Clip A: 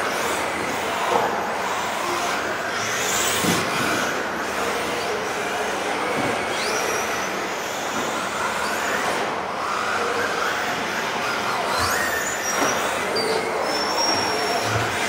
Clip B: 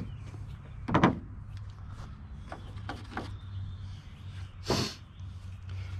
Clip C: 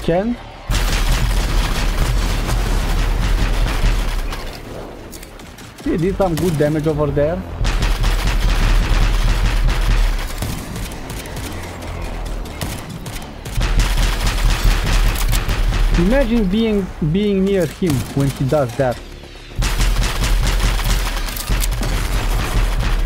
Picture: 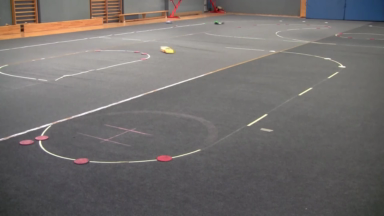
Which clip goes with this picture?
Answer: A